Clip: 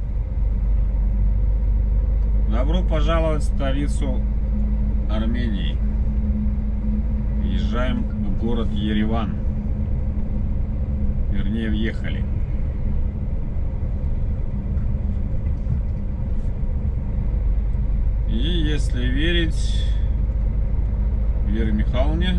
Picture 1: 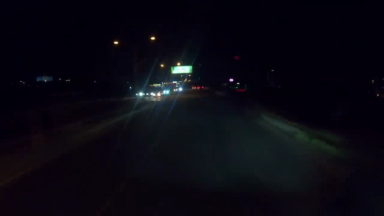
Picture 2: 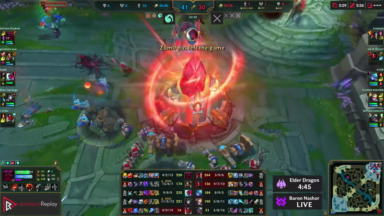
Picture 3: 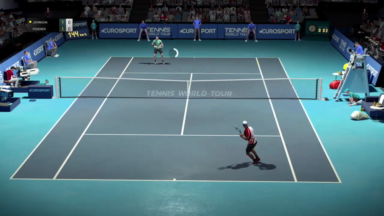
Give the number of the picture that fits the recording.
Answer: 1